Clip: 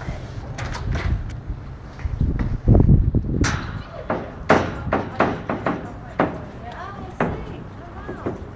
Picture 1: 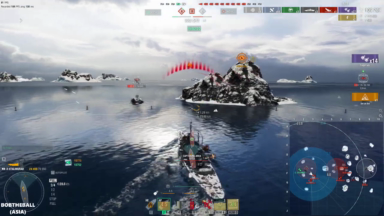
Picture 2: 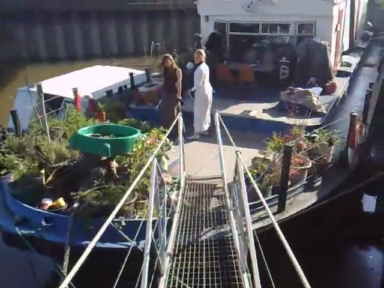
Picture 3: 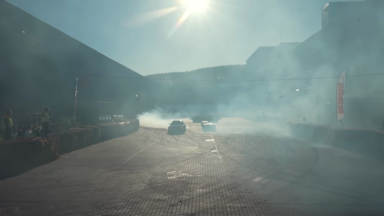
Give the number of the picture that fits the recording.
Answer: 2